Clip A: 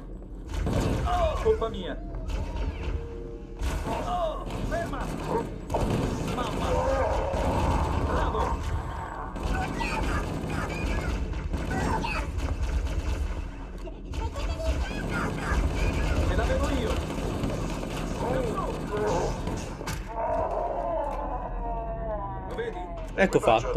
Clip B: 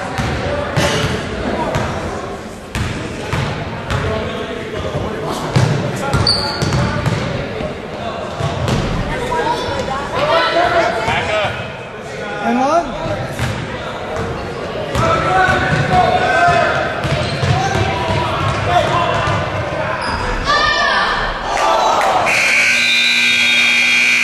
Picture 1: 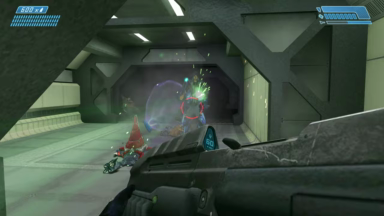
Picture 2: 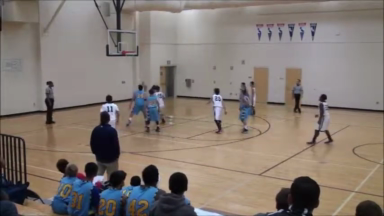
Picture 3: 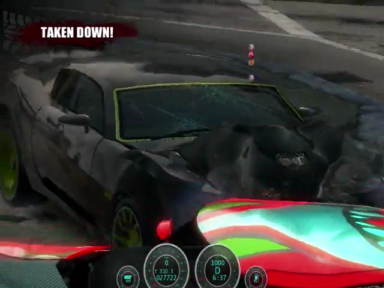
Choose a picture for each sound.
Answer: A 1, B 2